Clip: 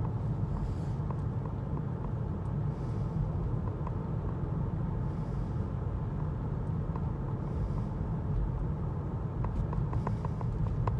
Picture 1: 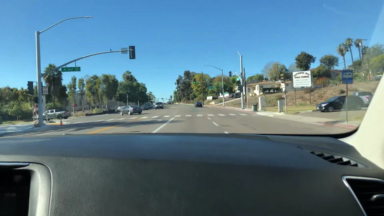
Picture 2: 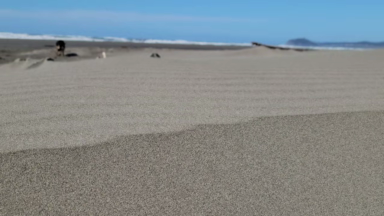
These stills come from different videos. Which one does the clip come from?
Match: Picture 1